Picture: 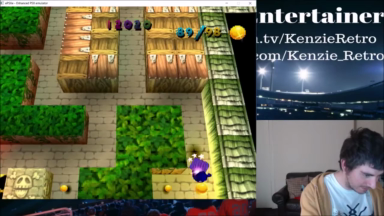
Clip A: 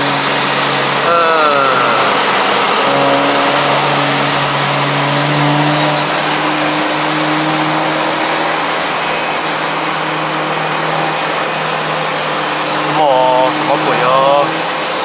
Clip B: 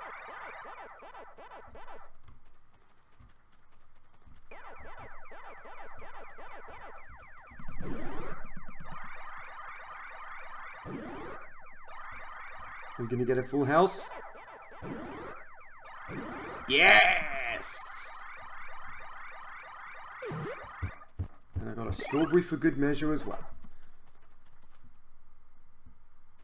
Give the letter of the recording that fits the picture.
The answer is B